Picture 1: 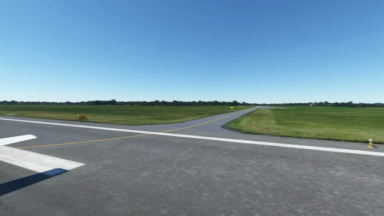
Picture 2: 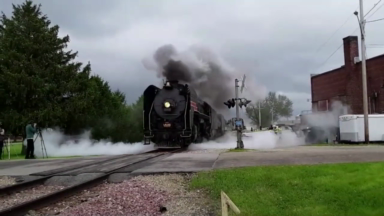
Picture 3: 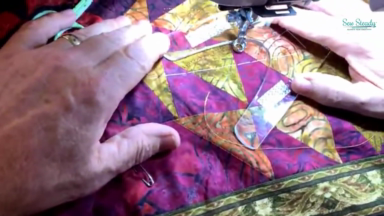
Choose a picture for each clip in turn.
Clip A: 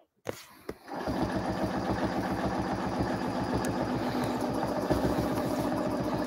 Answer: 3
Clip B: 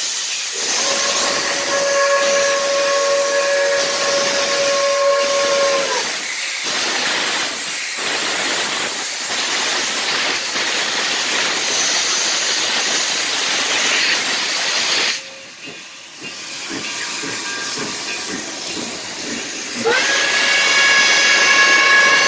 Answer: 2